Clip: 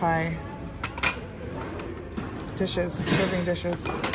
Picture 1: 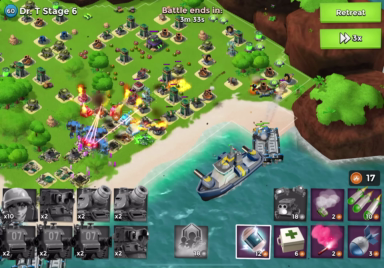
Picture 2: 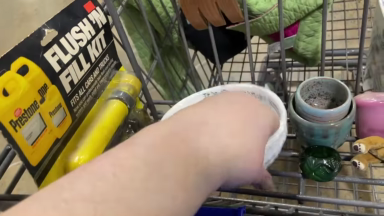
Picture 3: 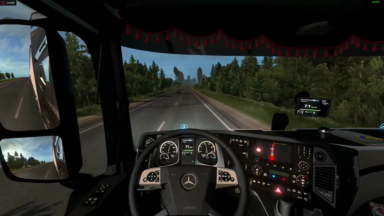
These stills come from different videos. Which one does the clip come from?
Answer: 2